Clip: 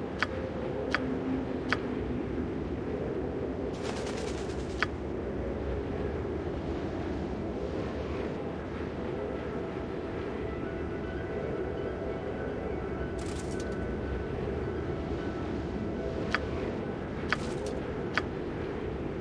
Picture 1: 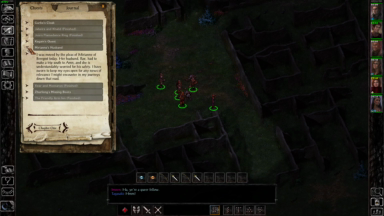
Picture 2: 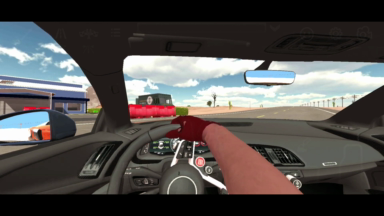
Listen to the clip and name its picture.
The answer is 1